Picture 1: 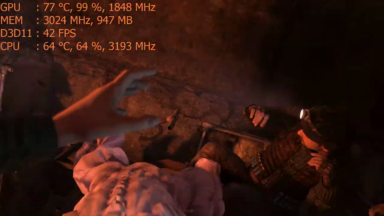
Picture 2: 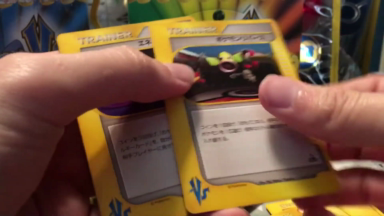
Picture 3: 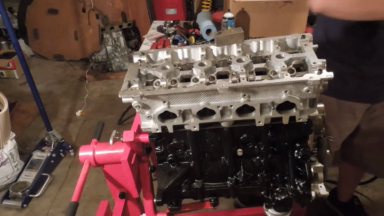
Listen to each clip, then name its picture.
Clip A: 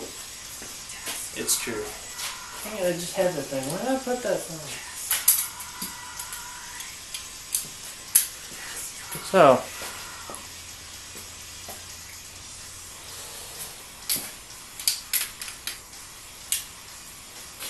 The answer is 3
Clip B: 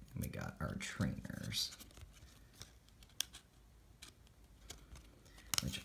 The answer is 2